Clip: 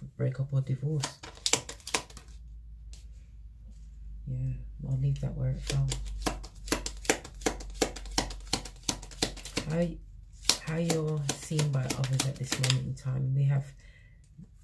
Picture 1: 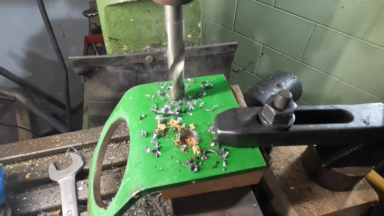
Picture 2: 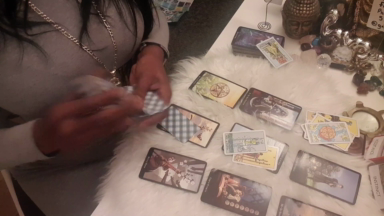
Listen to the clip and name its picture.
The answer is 2